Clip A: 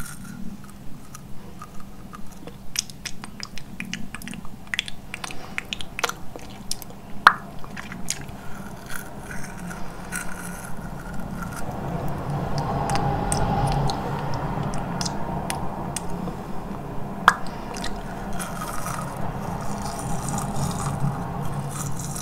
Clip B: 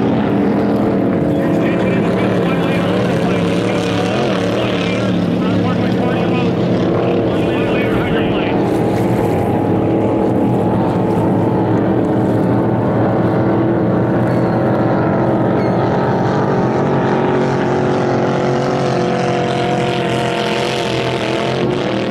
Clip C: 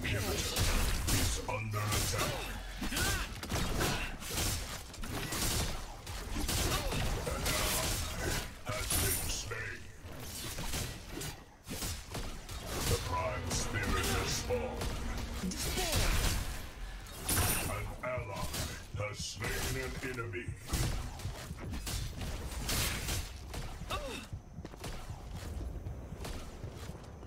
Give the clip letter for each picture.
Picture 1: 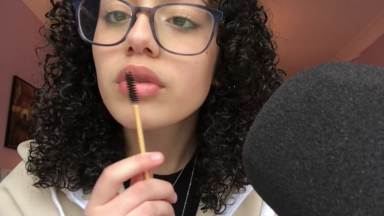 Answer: A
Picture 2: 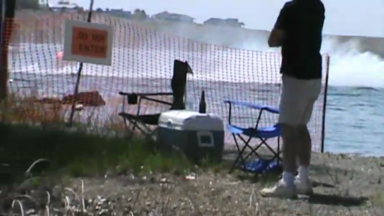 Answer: B